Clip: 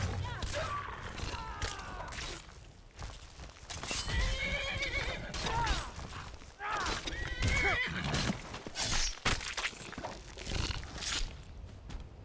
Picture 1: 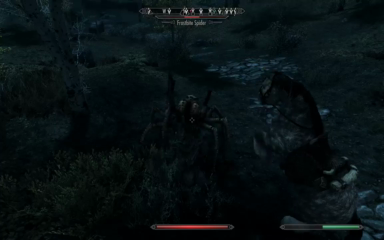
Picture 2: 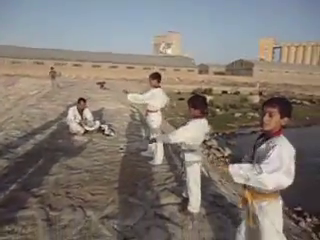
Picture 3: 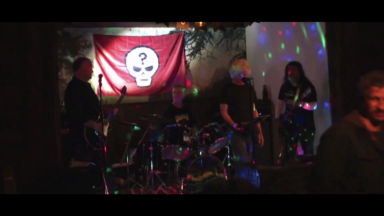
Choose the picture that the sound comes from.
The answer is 1